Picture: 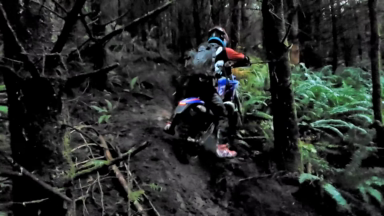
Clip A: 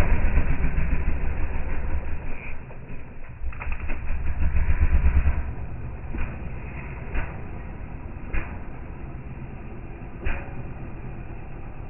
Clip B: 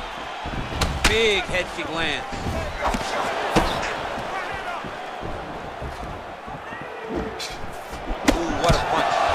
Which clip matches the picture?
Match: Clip A